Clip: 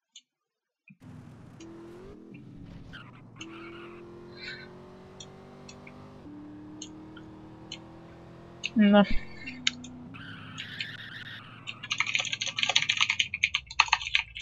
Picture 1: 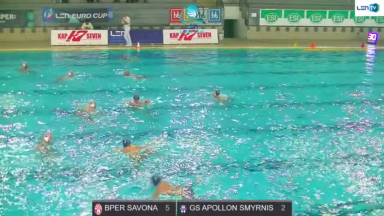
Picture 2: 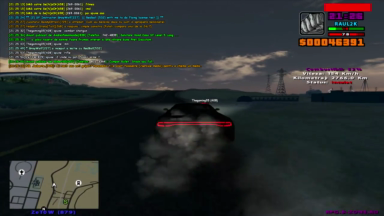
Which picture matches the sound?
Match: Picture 2